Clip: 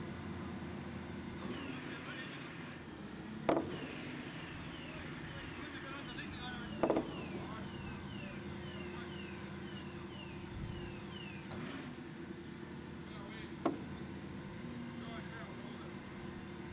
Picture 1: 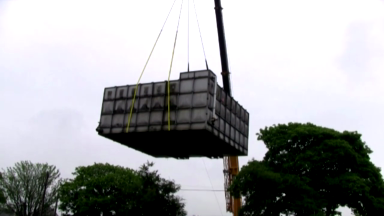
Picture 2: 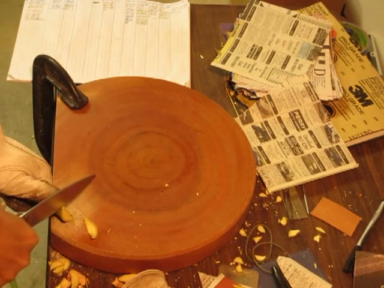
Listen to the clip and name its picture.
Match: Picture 1